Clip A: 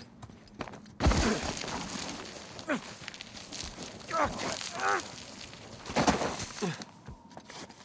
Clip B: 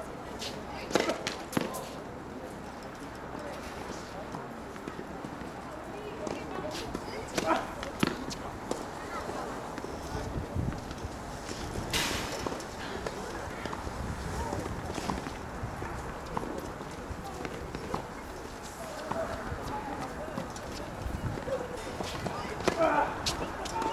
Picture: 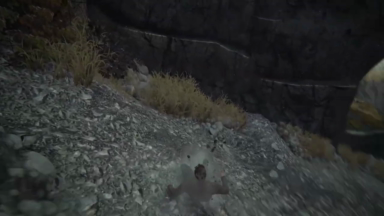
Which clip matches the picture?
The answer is A